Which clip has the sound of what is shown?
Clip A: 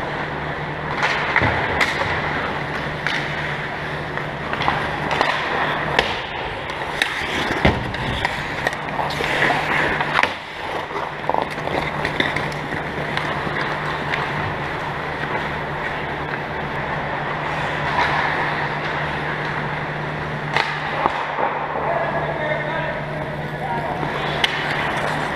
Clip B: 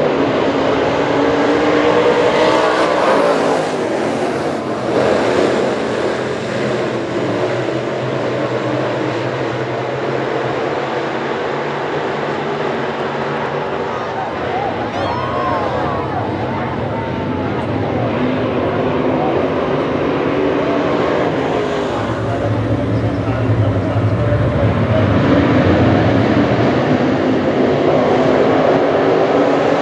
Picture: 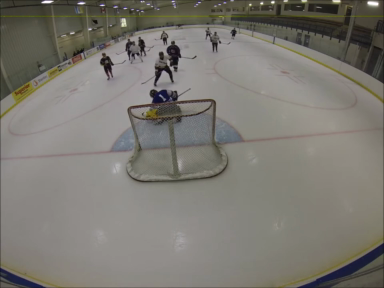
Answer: A